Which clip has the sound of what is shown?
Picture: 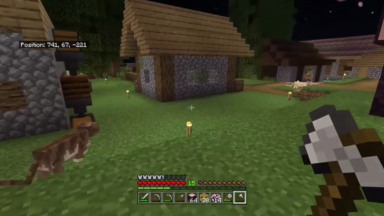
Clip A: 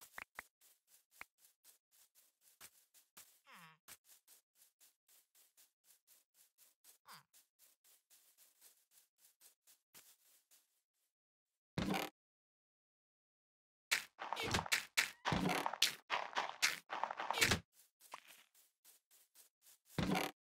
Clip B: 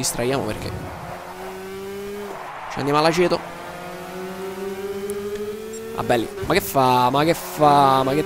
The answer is A